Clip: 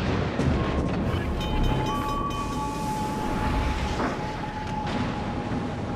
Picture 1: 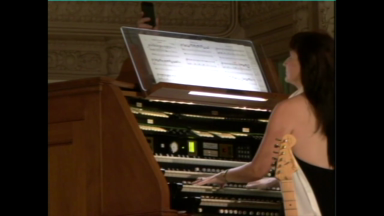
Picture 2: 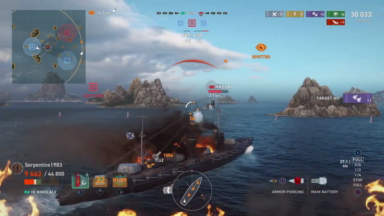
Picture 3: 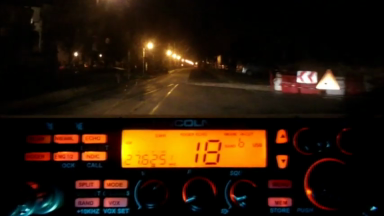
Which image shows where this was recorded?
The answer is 2